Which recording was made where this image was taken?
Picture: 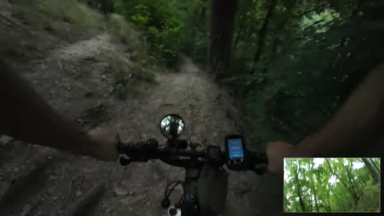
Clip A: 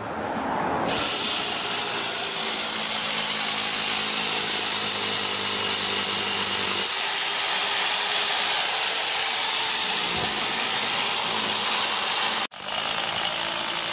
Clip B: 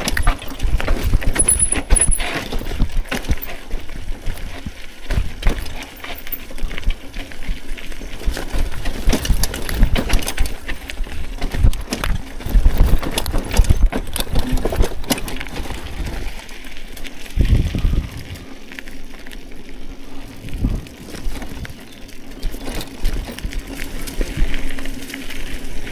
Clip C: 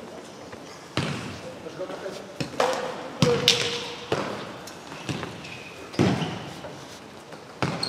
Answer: B